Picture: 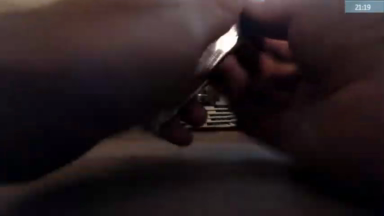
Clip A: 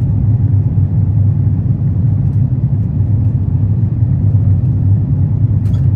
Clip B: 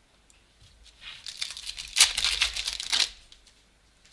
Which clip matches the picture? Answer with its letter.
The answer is B